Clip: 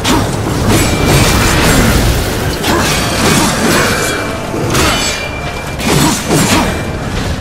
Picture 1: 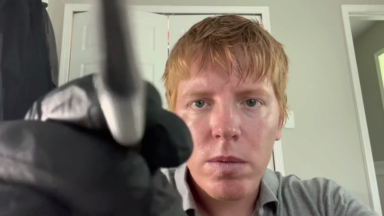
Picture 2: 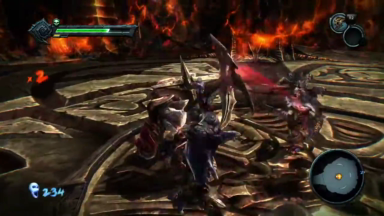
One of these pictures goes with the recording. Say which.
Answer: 2